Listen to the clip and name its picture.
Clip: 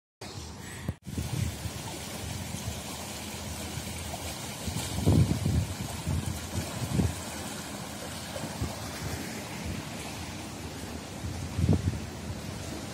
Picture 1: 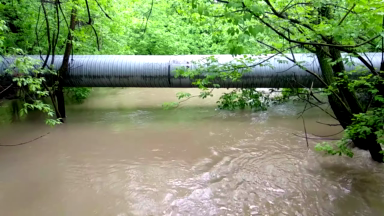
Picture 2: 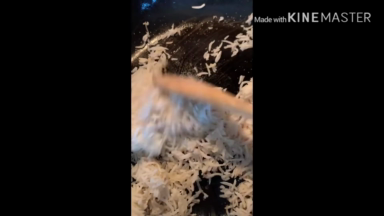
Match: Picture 1